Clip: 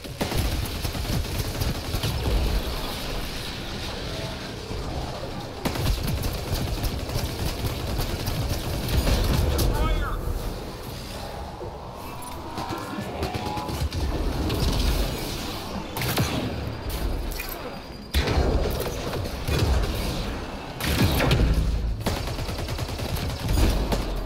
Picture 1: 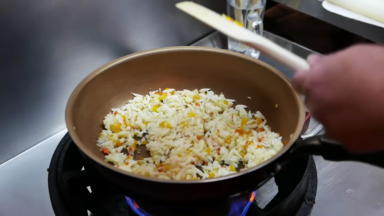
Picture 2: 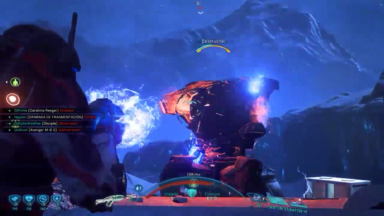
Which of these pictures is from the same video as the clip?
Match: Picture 2